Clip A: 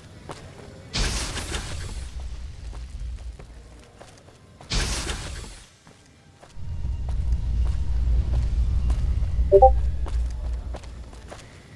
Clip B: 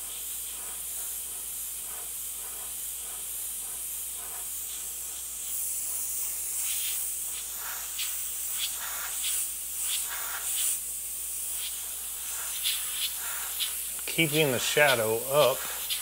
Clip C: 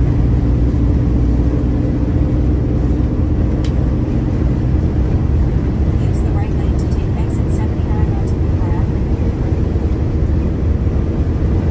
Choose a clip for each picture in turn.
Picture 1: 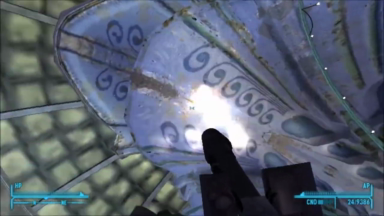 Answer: A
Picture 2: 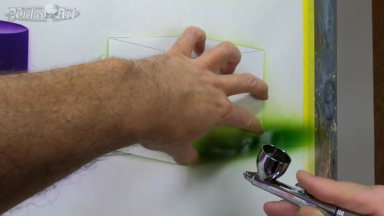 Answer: B